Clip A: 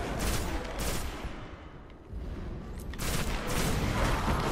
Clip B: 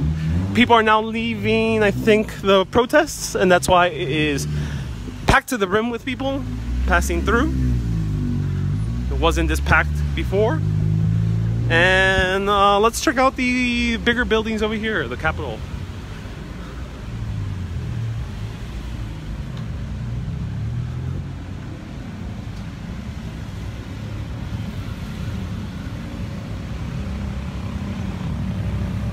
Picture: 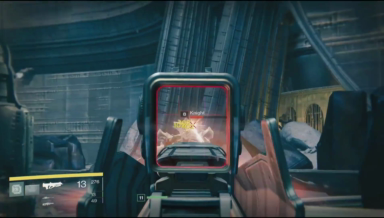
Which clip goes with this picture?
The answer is A